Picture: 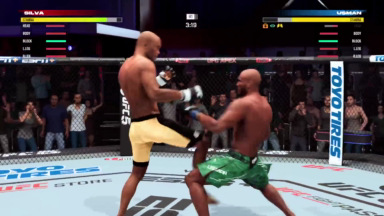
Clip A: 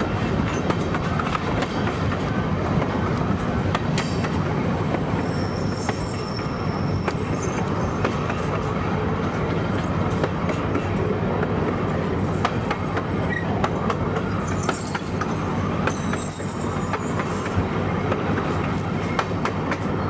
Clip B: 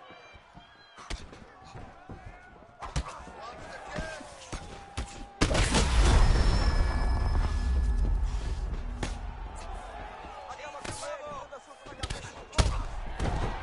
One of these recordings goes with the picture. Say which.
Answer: B